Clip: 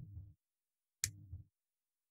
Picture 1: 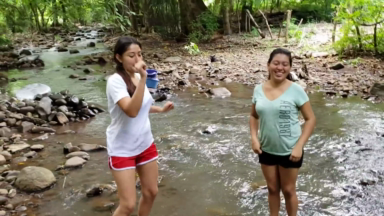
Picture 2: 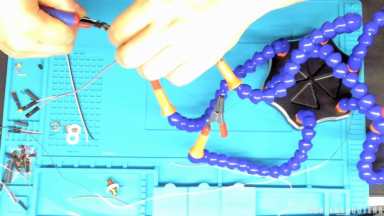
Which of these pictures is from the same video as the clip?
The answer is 2